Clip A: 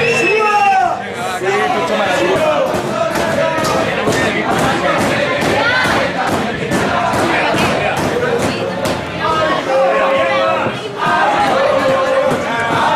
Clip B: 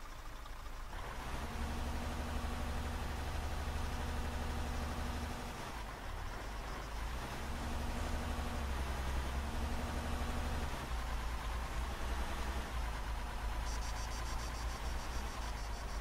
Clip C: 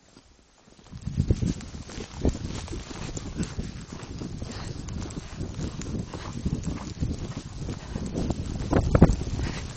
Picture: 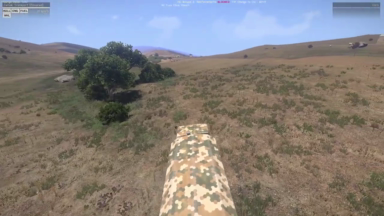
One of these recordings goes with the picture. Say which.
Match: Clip B